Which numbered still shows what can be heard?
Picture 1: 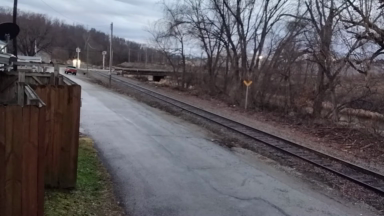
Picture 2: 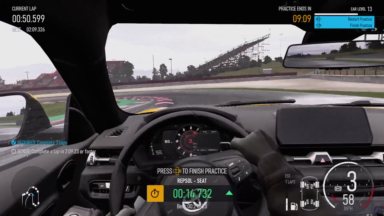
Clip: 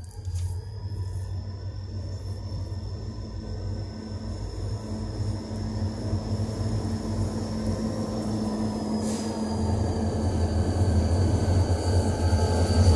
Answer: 1